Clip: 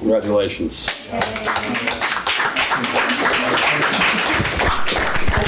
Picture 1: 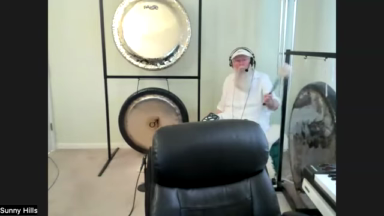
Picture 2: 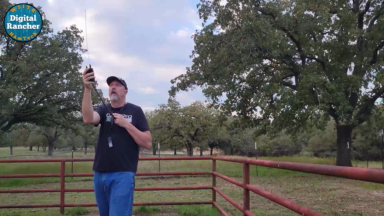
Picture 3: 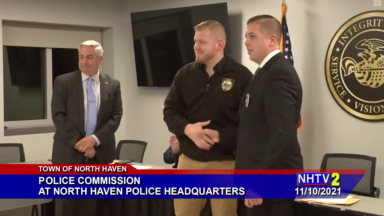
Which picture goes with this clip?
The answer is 3